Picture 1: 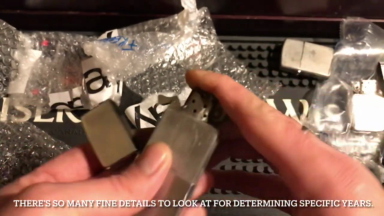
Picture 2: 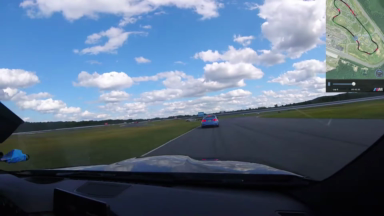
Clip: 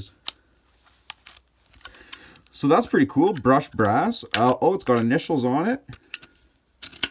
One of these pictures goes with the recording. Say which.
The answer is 1